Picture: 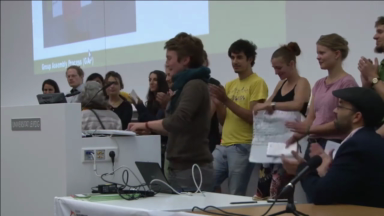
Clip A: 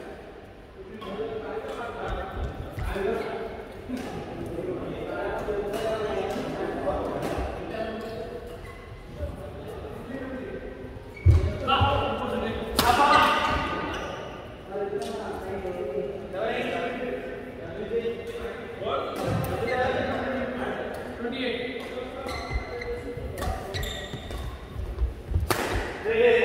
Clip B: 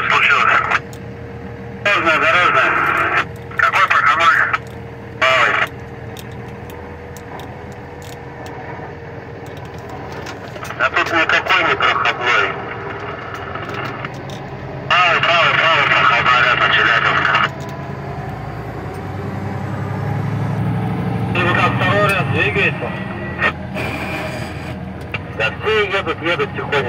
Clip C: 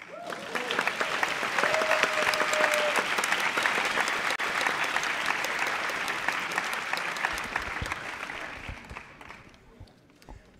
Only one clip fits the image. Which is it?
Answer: C